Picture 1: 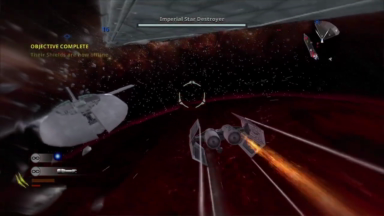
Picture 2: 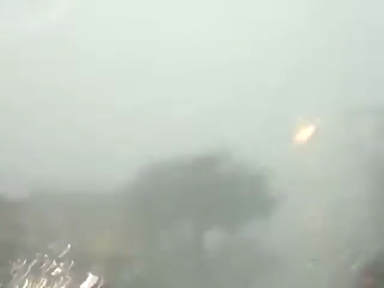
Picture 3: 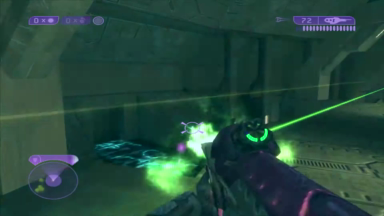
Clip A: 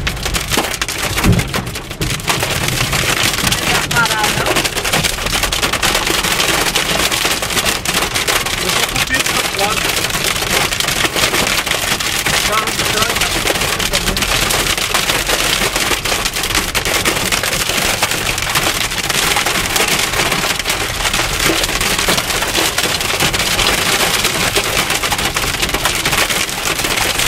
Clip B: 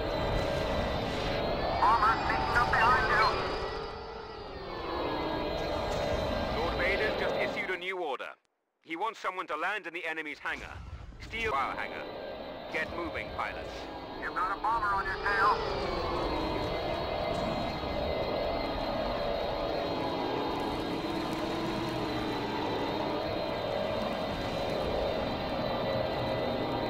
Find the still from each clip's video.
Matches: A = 2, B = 1